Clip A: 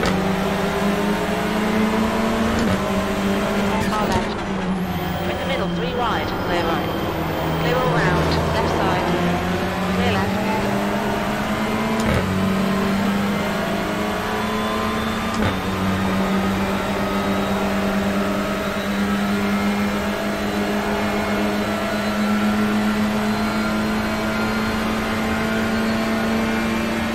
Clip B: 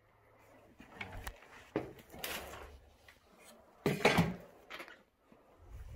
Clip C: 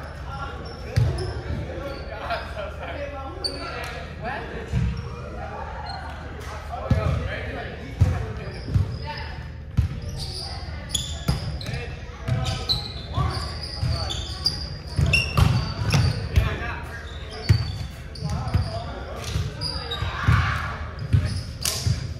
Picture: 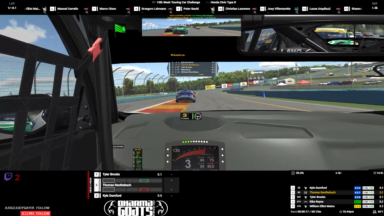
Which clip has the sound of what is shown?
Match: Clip A